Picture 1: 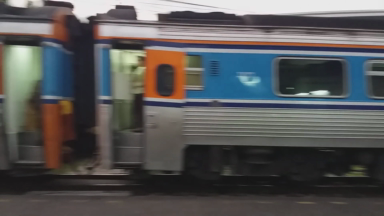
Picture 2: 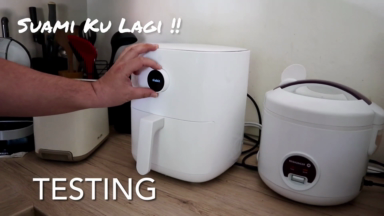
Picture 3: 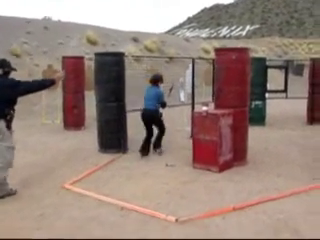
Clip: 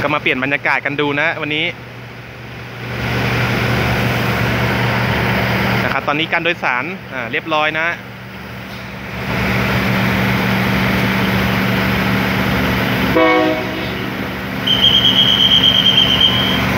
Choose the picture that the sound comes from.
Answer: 1